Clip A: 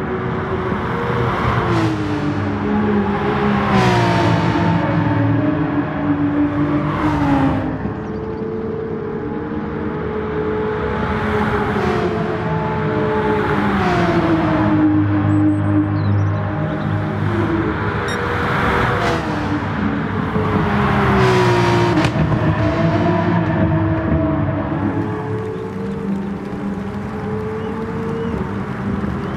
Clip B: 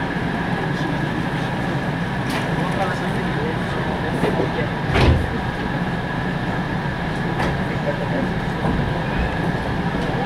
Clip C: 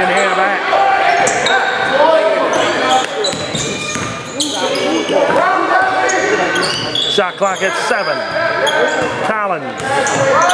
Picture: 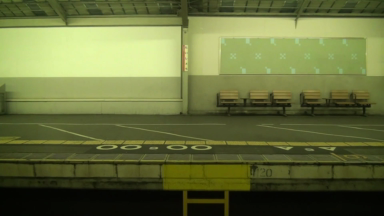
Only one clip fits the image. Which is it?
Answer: B